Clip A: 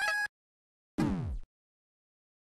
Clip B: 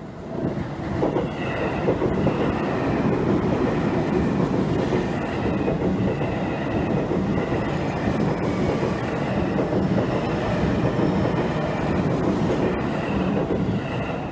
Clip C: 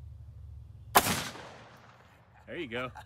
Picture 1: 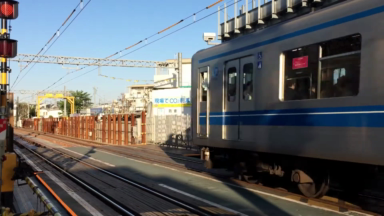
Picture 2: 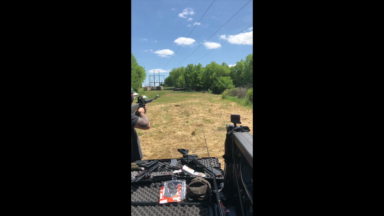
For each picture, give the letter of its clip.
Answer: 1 B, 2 C